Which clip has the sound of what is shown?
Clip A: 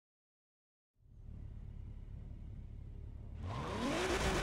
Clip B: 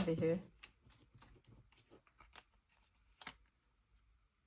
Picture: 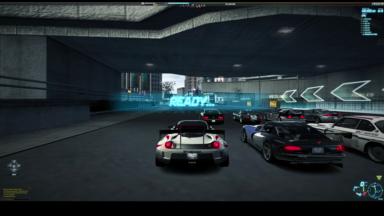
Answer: A